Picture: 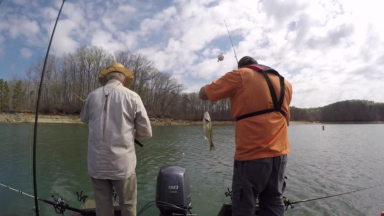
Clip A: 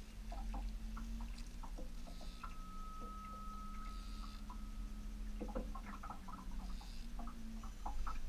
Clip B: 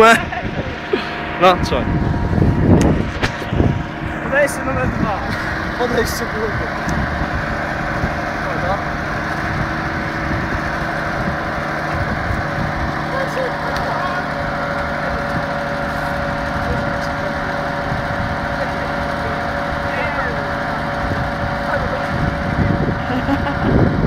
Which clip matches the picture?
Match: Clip A